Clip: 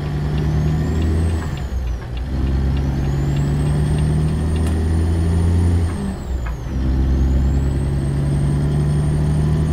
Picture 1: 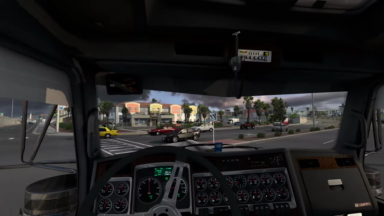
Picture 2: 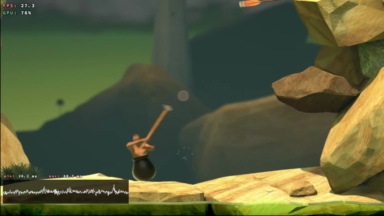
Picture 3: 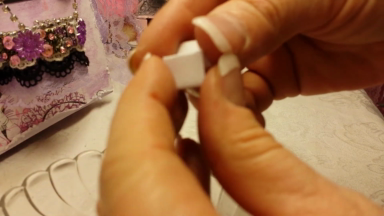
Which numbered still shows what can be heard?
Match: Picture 1